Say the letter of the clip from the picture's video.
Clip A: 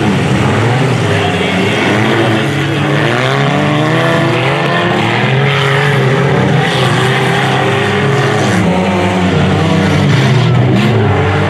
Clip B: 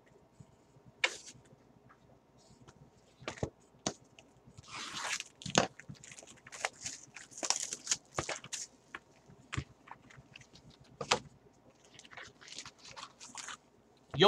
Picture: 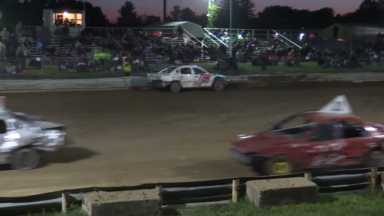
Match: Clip A